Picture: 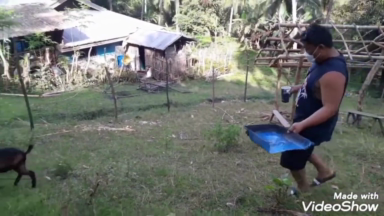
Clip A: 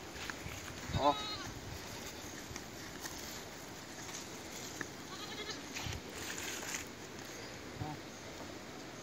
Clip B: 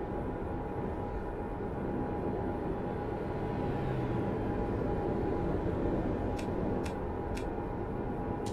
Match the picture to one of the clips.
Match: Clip A